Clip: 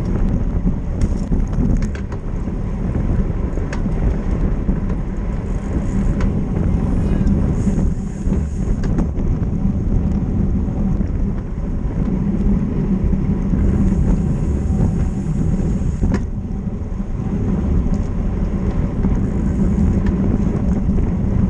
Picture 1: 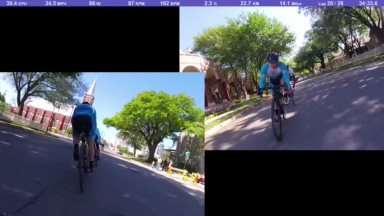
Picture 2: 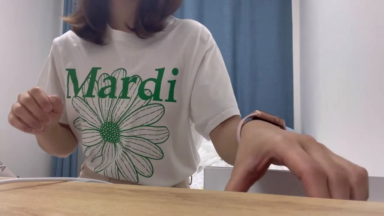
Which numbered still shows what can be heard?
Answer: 1